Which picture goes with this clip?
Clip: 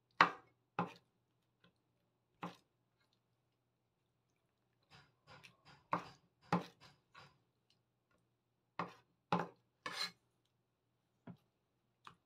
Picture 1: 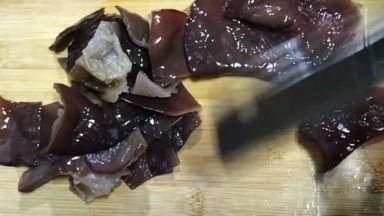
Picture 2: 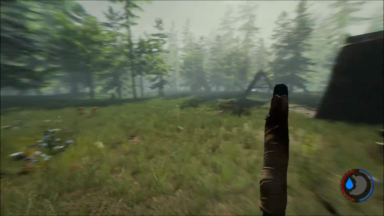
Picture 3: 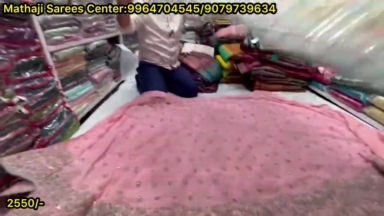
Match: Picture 1